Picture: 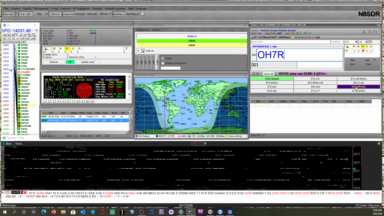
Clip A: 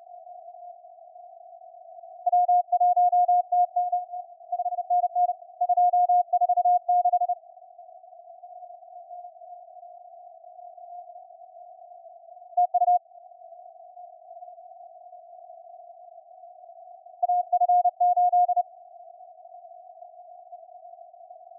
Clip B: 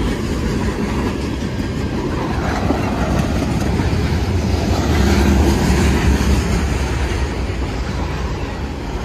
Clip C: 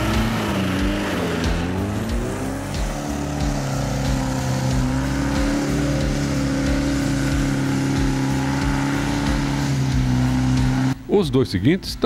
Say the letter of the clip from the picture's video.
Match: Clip A